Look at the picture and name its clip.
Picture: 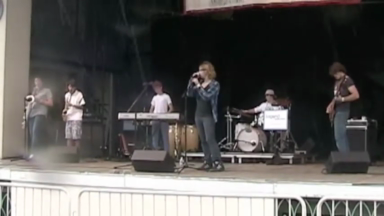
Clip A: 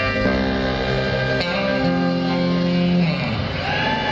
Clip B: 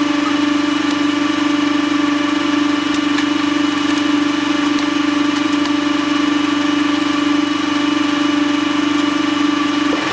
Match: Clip A